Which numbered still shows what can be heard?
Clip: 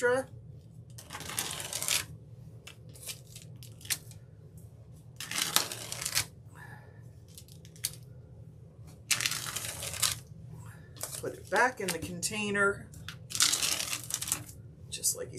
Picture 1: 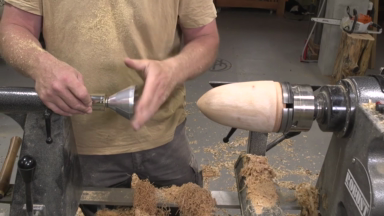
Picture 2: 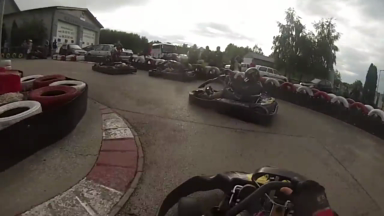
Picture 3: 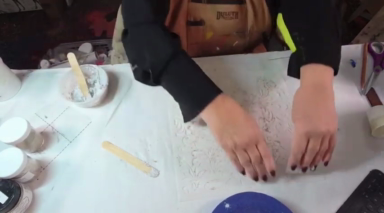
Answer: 3